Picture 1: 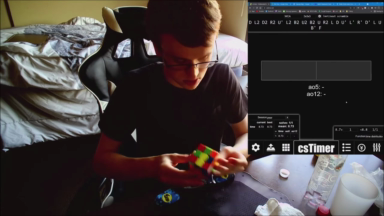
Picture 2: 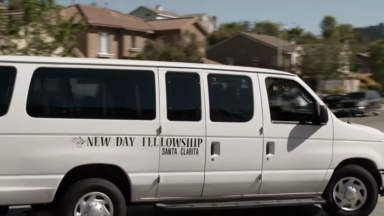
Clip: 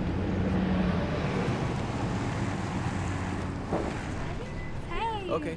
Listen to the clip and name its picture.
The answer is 2